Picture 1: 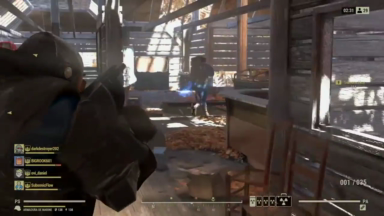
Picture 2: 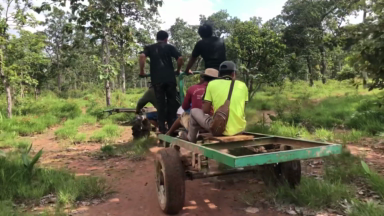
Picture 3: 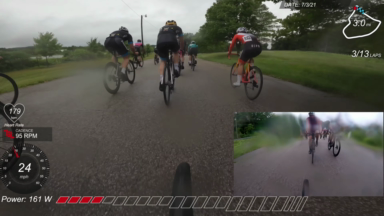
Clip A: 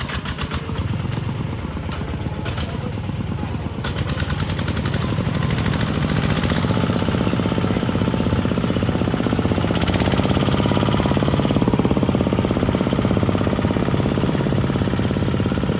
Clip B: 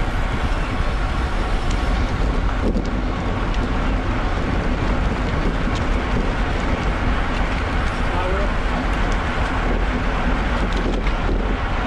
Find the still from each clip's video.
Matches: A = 2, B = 3